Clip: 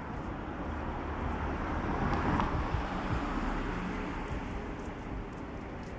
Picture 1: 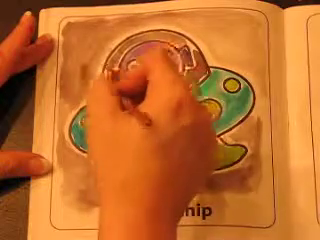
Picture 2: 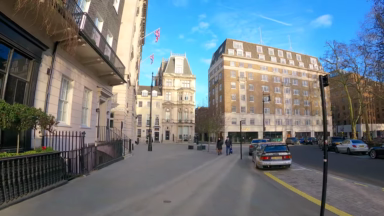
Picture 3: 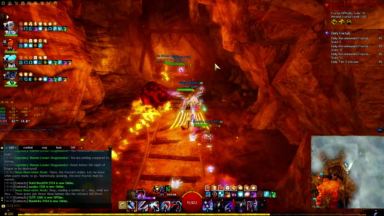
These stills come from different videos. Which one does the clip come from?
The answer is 2